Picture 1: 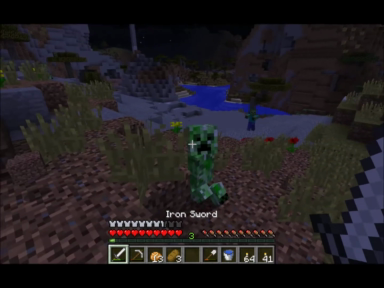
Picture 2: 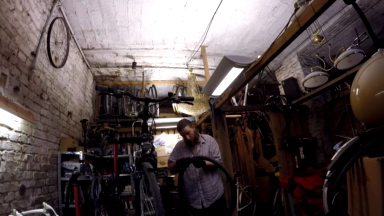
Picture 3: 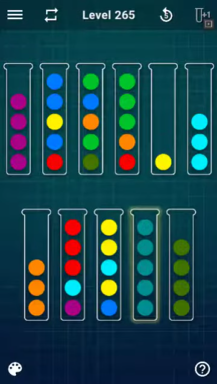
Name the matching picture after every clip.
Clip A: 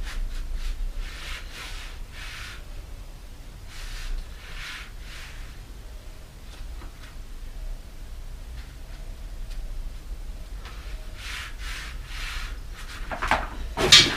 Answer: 2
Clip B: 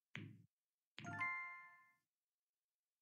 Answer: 3